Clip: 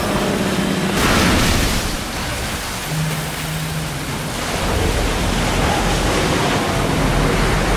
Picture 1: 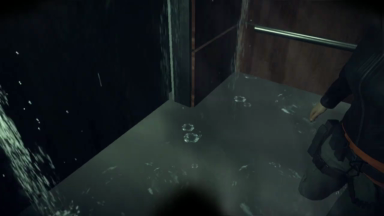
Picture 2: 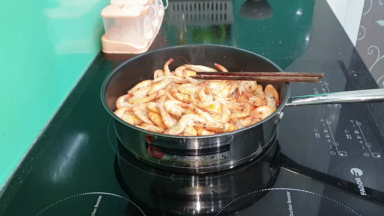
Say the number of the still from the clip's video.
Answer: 1